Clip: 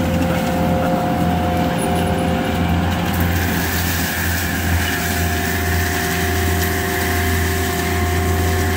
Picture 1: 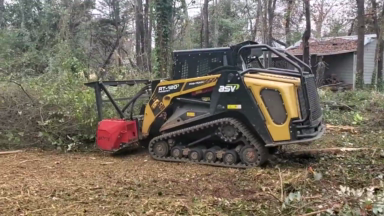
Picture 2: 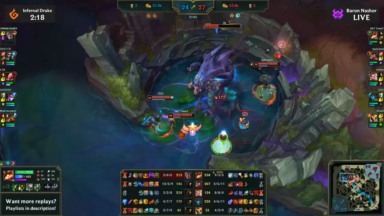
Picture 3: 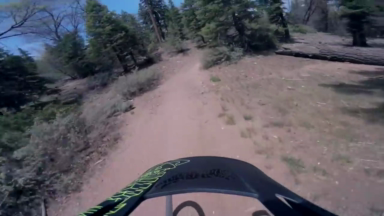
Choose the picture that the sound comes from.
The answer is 1